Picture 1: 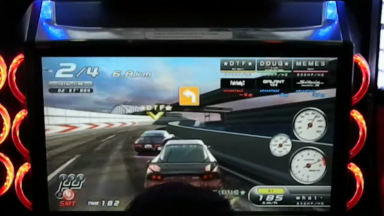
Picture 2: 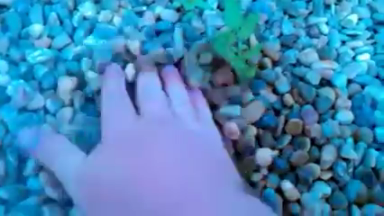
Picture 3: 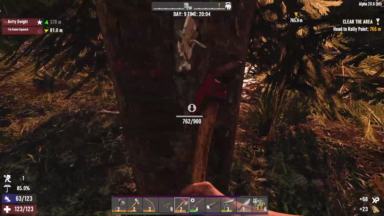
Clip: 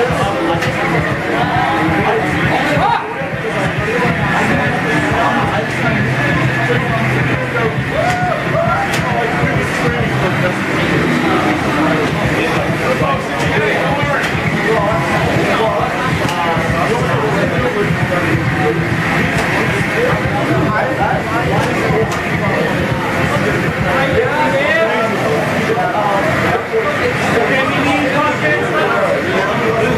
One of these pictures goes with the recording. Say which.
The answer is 1